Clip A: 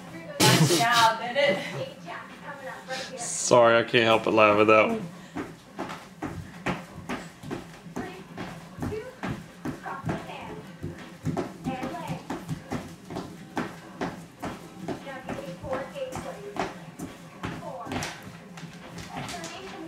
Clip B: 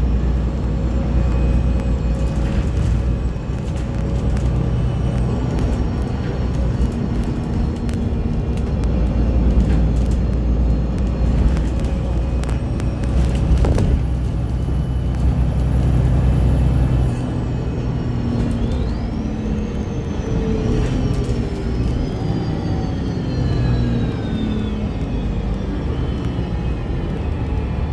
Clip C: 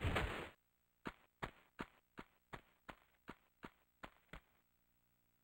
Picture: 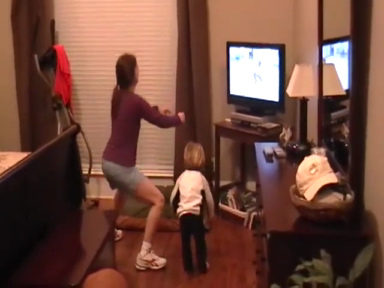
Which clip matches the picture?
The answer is A